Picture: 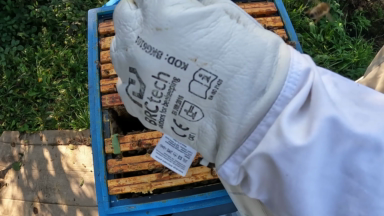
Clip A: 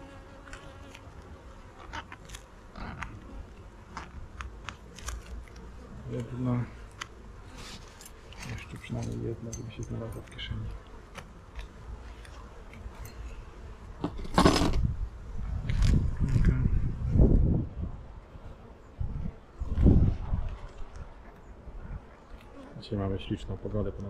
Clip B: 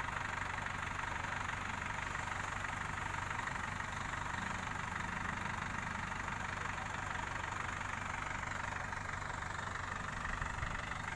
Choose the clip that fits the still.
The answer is A